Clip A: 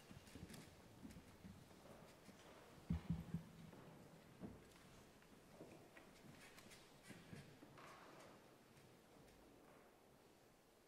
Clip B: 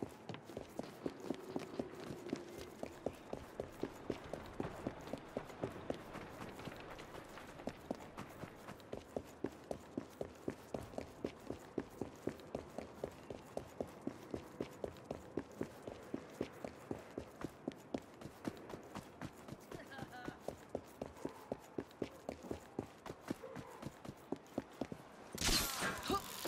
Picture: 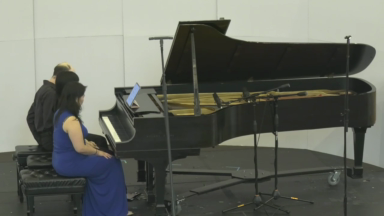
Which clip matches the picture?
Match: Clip A